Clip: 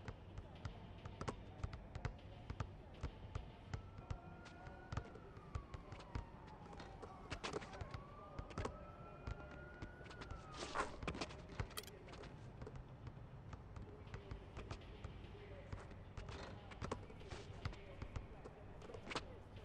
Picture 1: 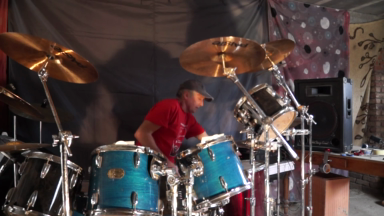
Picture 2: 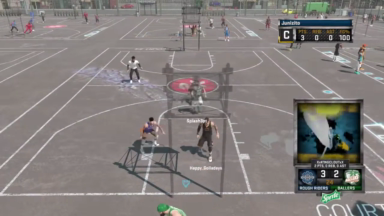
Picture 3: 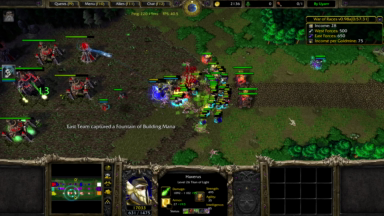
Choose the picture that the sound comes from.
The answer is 2